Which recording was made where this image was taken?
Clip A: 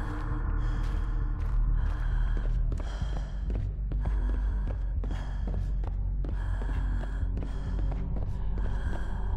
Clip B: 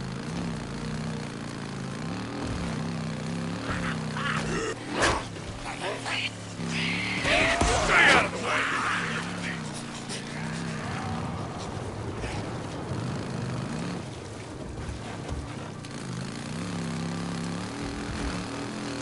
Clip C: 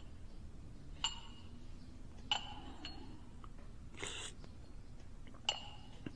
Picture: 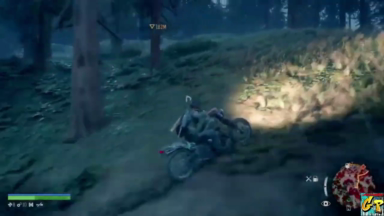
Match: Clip B